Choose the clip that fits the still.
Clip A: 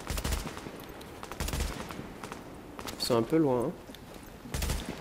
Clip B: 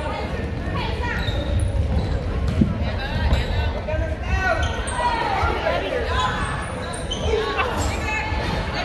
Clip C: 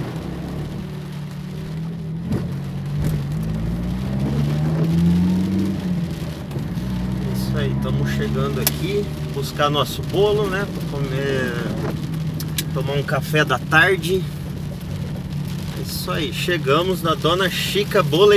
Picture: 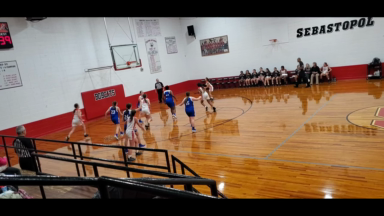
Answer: B